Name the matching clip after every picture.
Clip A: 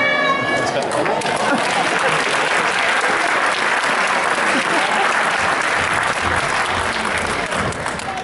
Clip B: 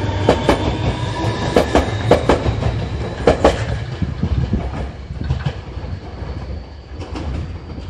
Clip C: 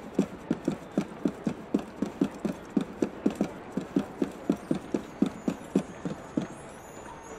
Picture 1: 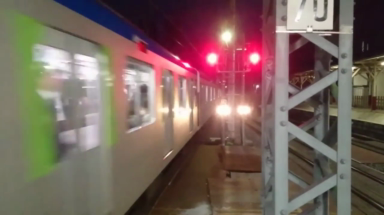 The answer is B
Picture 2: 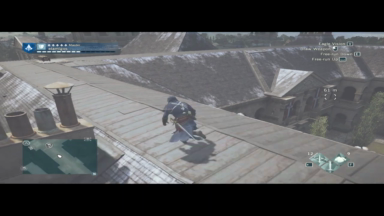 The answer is C